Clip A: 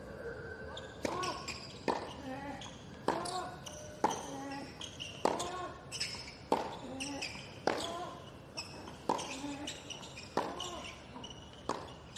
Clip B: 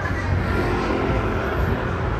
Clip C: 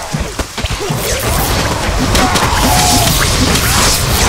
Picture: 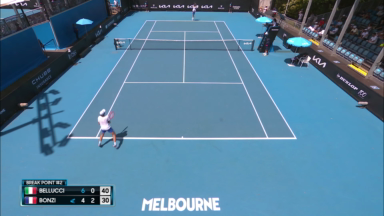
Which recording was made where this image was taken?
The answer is A